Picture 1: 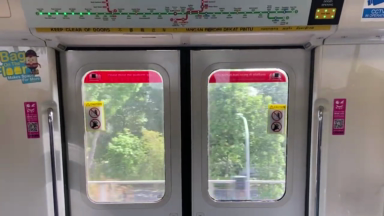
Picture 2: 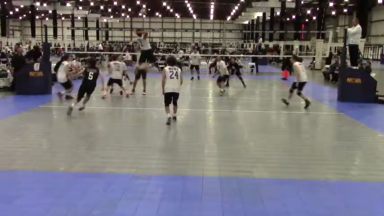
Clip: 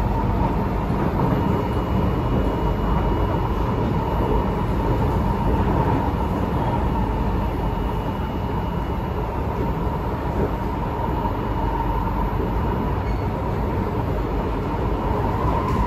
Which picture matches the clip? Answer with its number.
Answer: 1